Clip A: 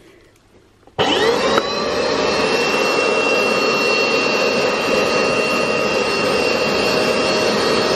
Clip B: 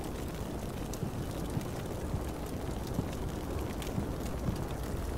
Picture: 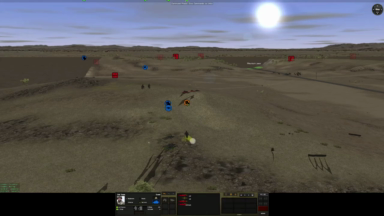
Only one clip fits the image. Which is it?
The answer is B